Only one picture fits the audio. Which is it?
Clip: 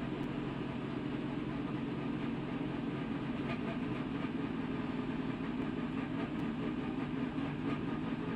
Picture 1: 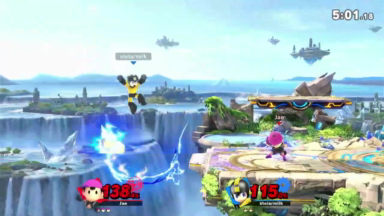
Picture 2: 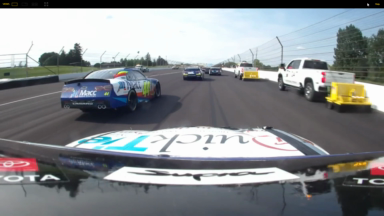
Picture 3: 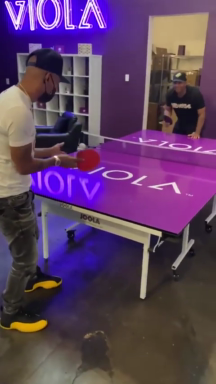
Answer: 2